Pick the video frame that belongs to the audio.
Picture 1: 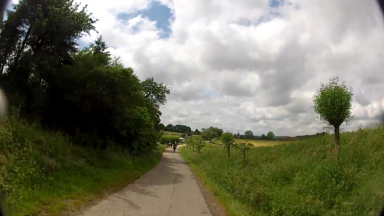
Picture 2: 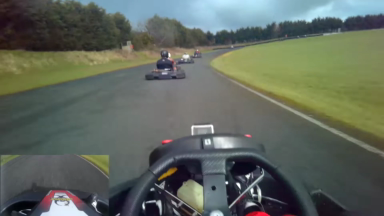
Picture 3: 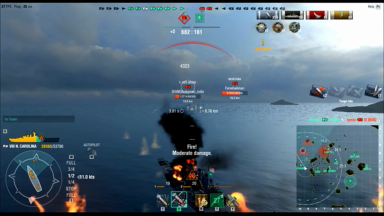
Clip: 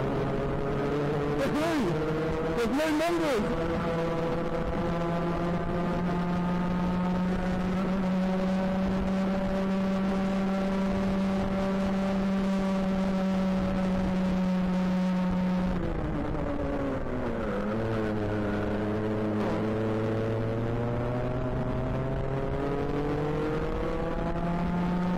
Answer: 2